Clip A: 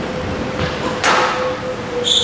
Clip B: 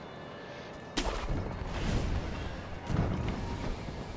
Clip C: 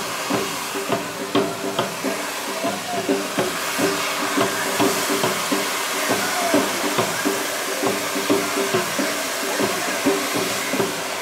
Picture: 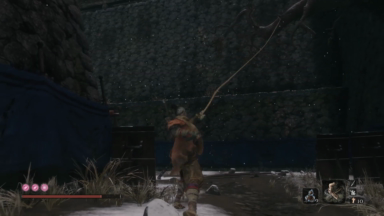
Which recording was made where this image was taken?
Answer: B